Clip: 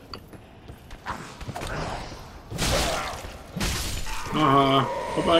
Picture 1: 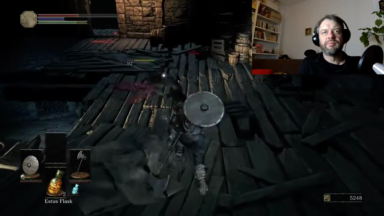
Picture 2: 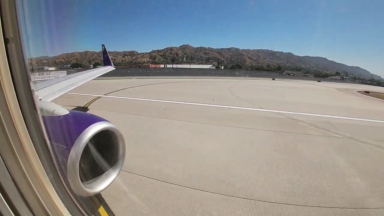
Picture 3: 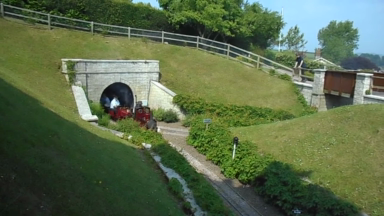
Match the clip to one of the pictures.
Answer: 1